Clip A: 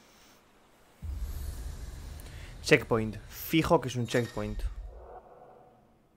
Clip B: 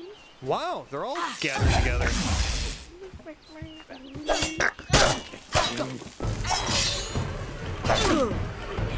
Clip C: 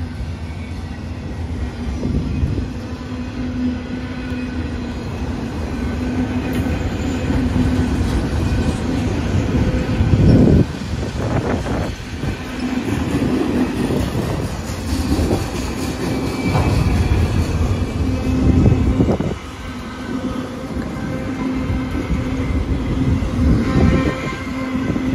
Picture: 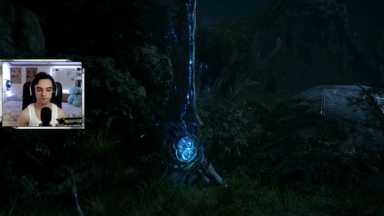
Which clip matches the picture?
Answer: A